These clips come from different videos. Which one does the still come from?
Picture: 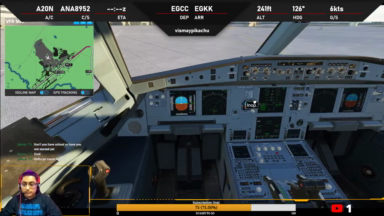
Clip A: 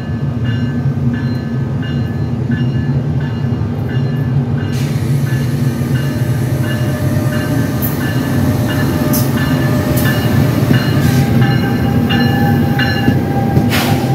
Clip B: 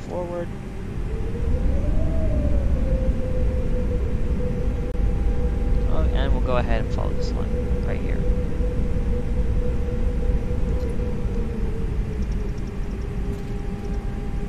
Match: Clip B